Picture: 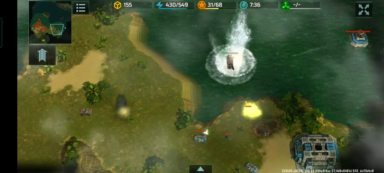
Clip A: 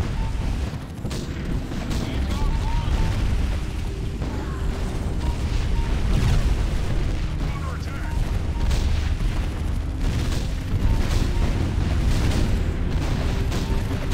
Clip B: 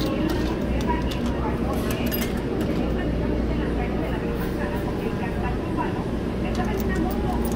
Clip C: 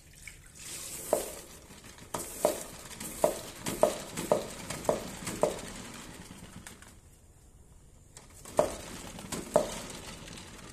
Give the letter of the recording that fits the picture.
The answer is A